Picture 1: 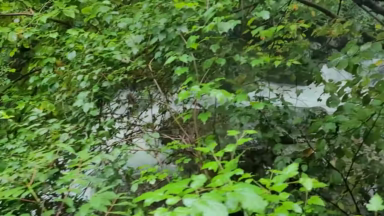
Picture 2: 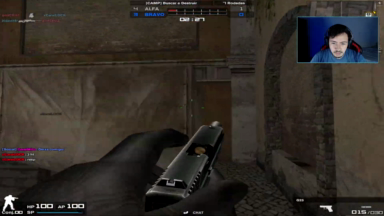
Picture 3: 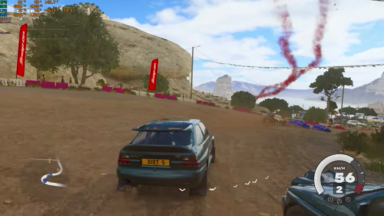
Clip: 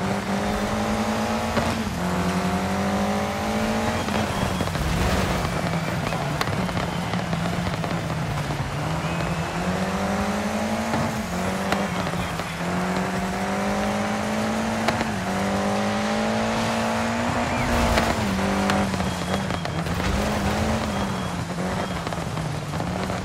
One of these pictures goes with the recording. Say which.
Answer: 3